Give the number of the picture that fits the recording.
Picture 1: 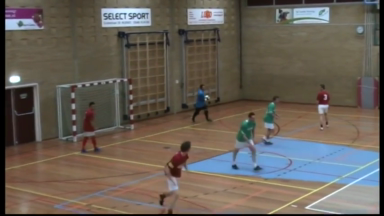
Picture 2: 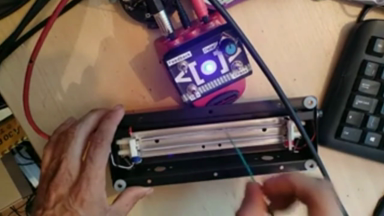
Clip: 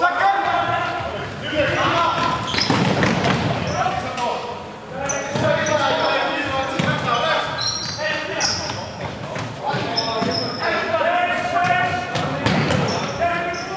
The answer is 1